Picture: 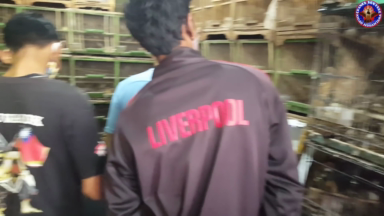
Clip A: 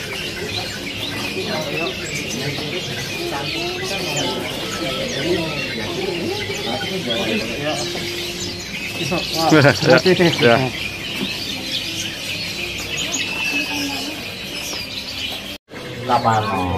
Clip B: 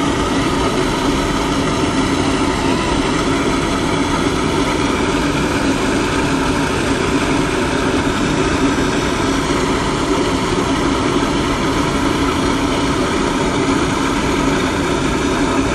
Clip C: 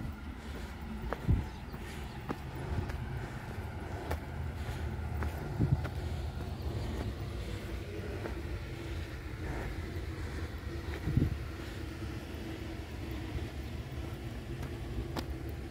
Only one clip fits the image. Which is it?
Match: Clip A